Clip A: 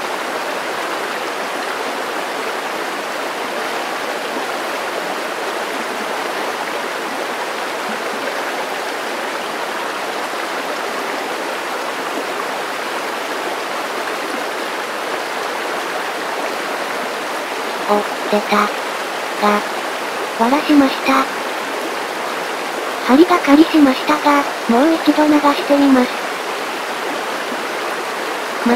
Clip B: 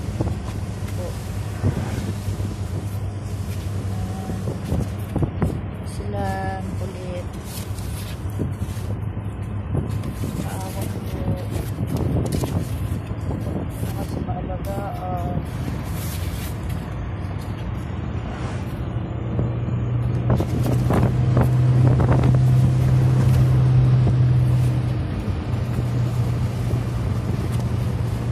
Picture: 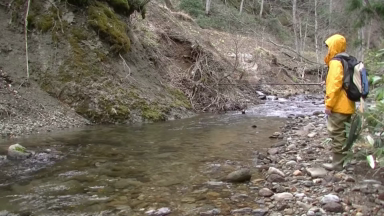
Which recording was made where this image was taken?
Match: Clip A